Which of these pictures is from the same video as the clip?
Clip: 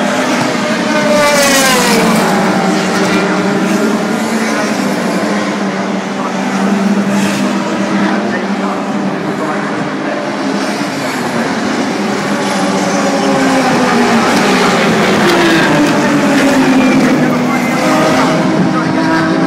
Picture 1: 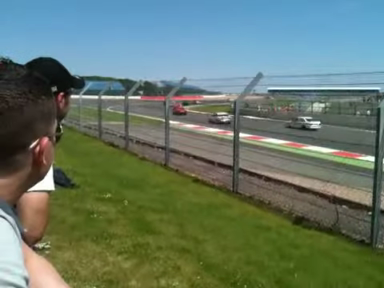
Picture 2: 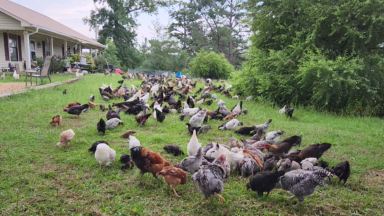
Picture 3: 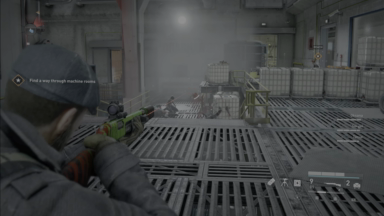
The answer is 1